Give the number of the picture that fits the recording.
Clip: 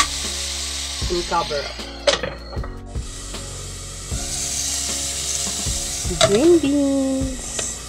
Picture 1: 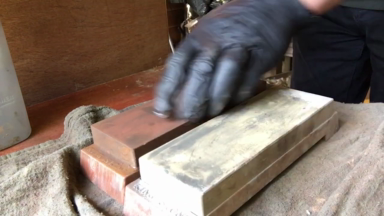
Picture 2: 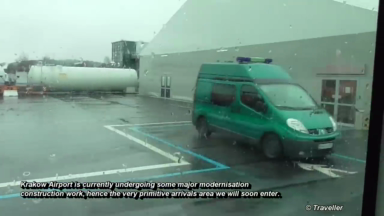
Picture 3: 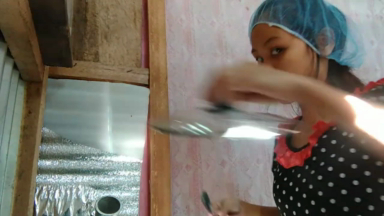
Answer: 3